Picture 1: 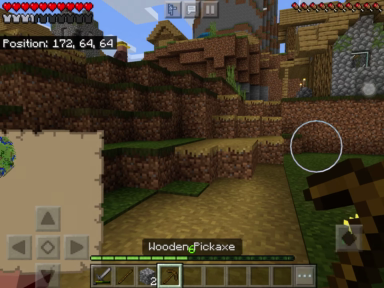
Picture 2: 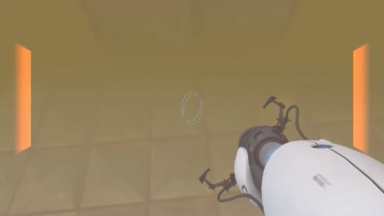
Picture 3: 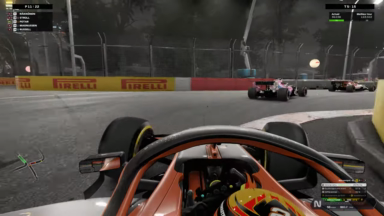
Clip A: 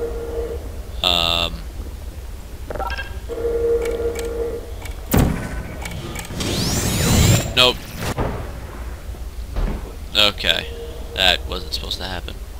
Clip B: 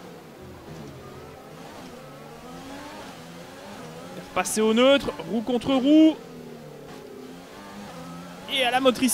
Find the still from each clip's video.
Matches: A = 2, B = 3